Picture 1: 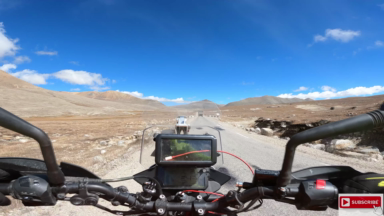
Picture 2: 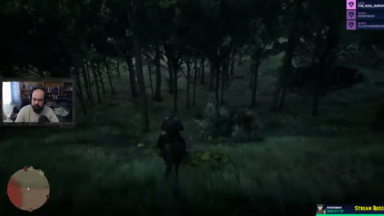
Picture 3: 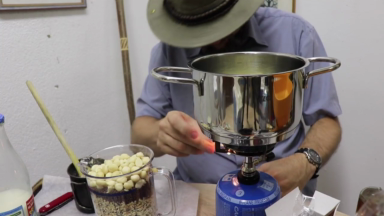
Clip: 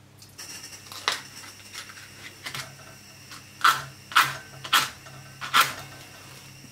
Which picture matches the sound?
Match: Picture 3